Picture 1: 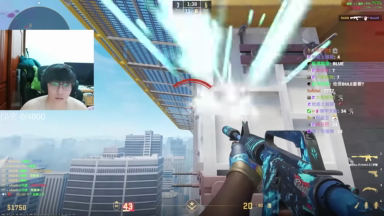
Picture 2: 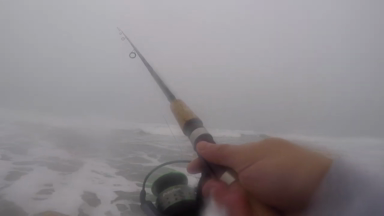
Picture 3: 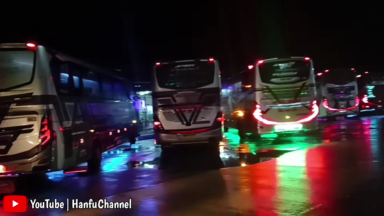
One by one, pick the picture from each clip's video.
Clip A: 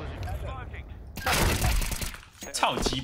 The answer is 1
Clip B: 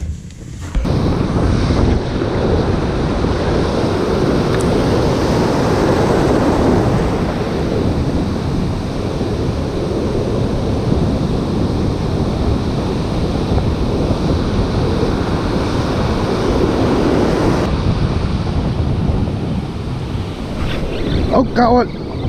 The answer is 2